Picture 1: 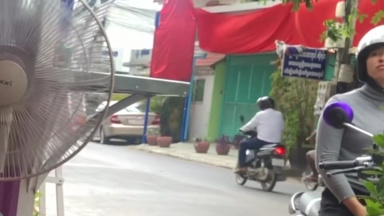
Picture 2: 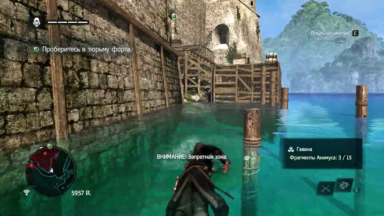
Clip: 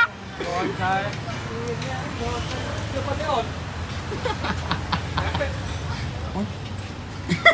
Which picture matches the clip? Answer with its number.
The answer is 1